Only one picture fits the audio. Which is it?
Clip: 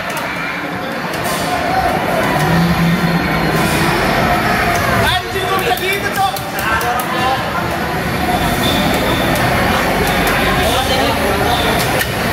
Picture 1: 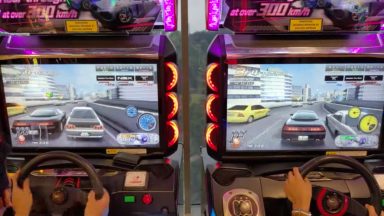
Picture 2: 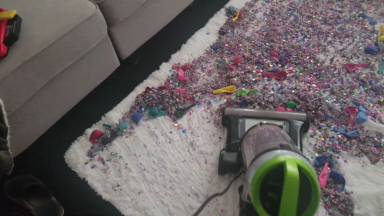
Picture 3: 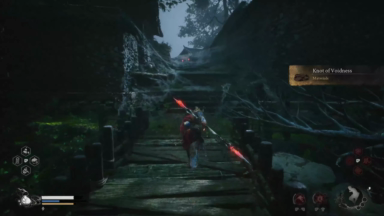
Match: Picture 1